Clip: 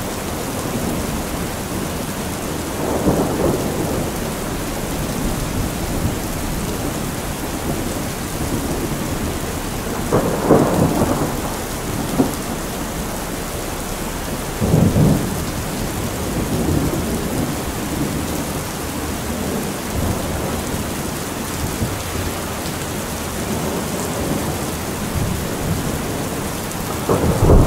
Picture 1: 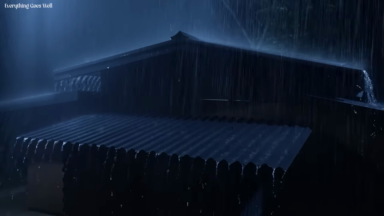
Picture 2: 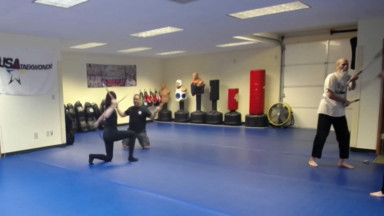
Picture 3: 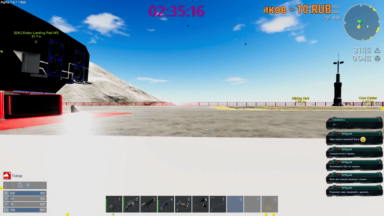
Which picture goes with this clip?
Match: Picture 1